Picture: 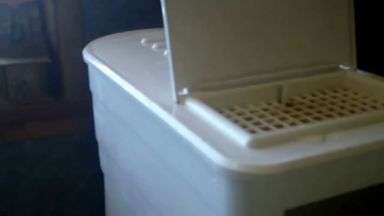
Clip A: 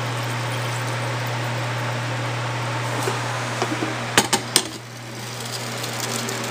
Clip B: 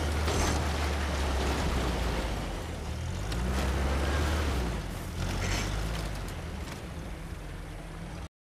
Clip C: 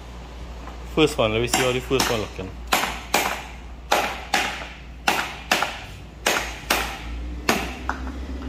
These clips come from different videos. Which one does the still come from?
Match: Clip A